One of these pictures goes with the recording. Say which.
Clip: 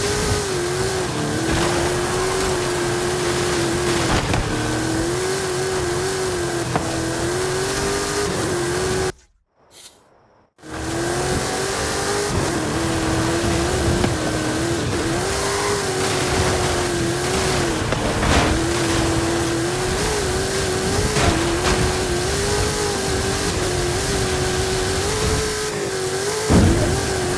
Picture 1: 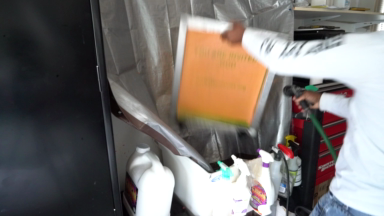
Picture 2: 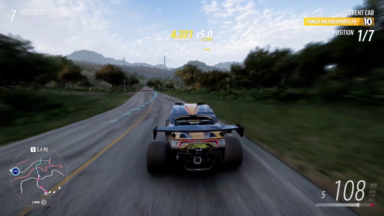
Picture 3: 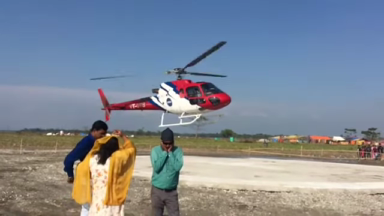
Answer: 2